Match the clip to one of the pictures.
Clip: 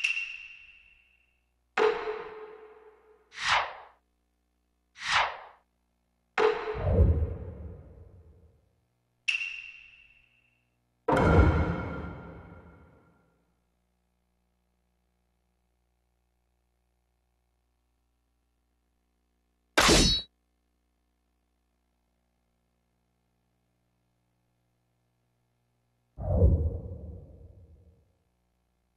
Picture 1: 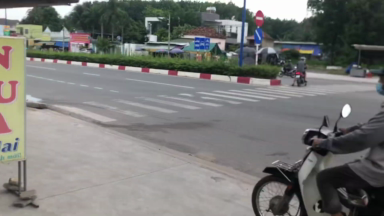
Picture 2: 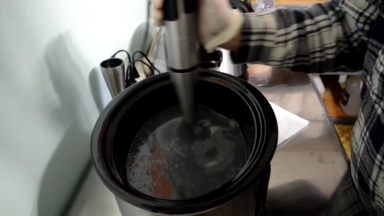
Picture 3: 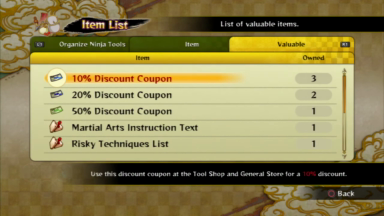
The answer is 3